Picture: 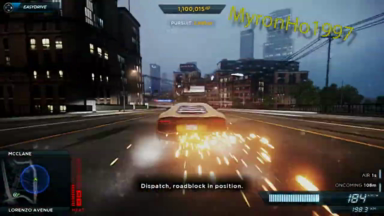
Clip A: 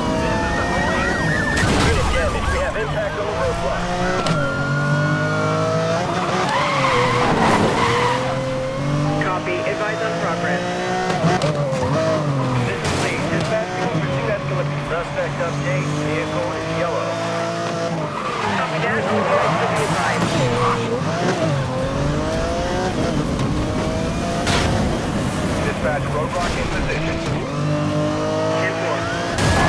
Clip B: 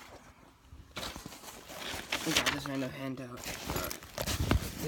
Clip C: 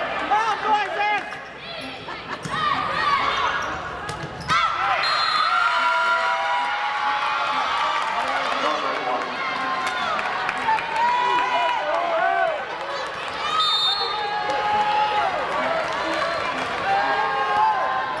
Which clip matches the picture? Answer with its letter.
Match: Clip A